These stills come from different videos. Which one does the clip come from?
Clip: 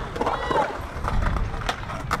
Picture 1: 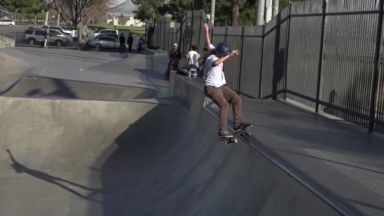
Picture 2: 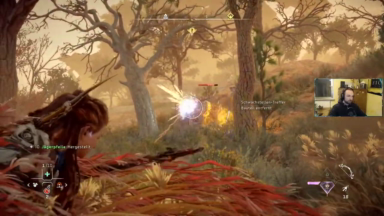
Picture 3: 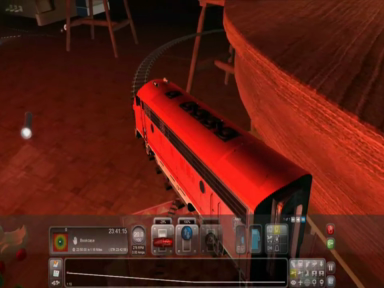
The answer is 1